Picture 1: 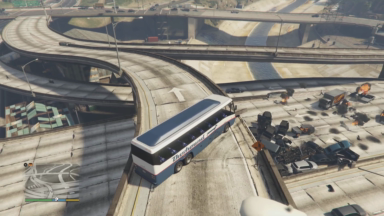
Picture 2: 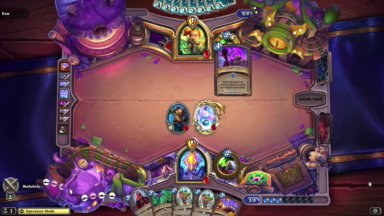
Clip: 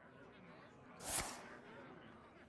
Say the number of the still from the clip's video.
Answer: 2